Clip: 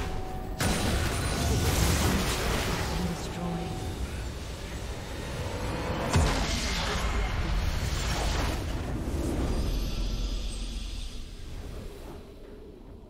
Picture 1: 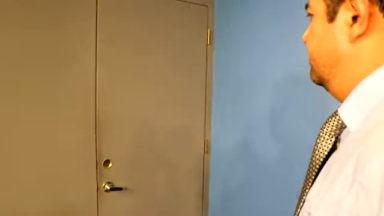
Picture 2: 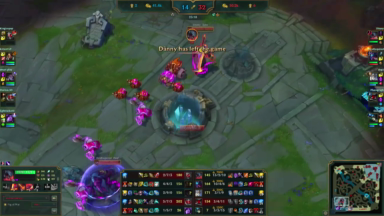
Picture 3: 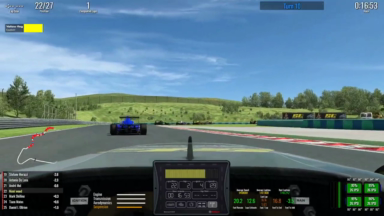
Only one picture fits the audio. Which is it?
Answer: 2